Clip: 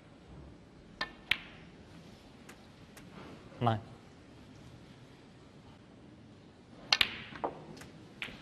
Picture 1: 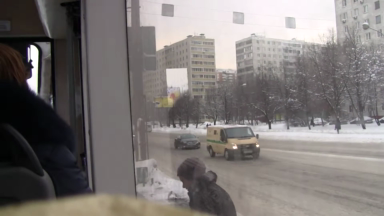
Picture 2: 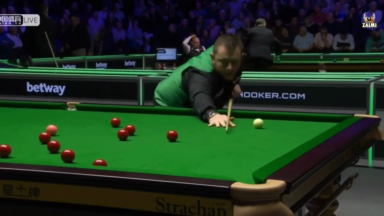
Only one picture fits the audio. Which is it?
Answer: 2